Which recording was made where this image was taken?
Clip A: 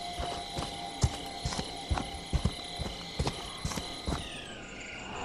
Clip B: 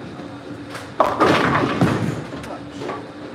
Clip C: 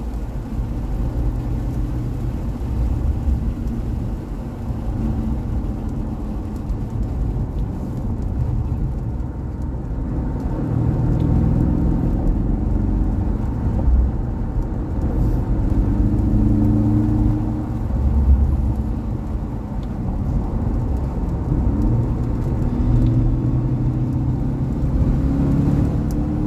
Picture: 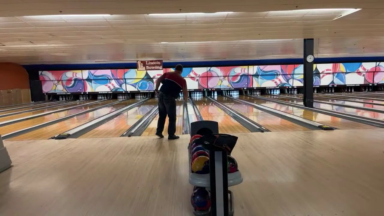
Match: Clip B